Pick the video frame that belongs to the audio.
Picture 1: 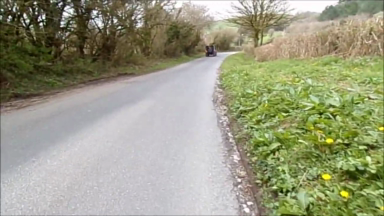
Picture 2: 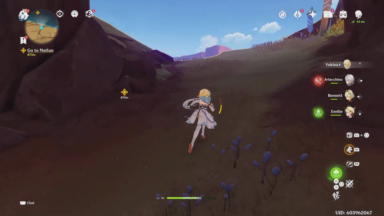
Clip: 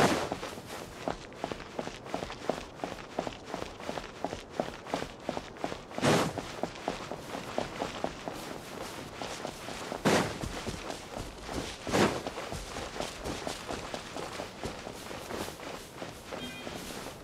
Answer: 2